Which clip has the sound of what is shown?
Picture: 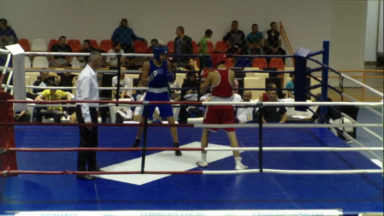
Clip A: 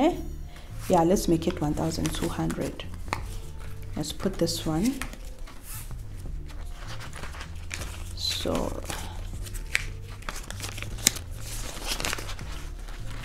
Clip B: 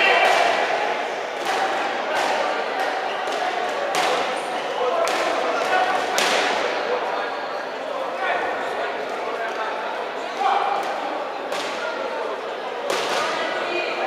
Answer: B